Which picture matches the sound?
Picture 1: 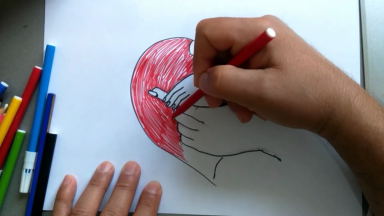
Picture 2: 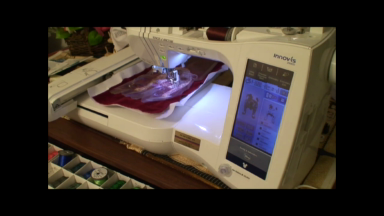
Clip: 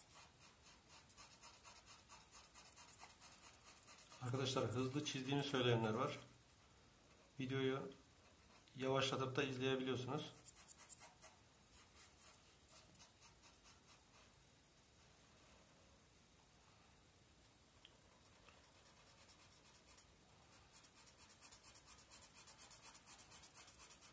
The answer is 1